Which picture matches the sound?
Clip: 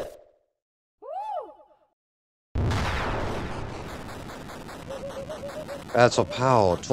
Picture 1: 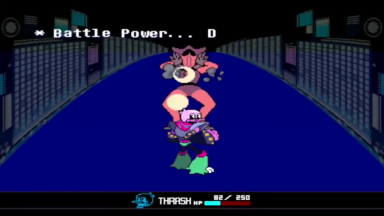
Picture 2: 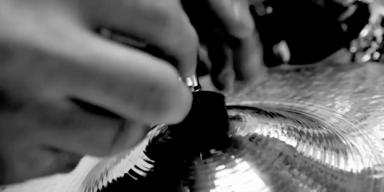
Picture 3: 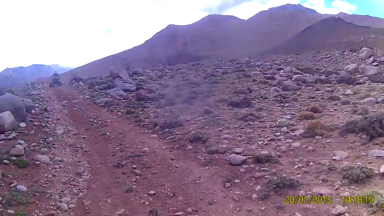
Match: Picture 1